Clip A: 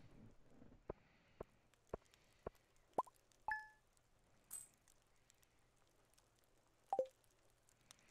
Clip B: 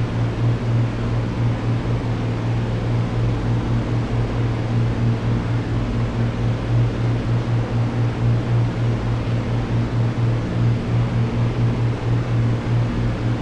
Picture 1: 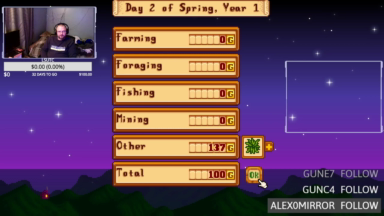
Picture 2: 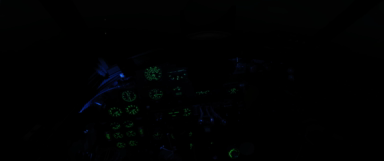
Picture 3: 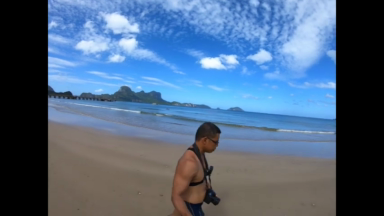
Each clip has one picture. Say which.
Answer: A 1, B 2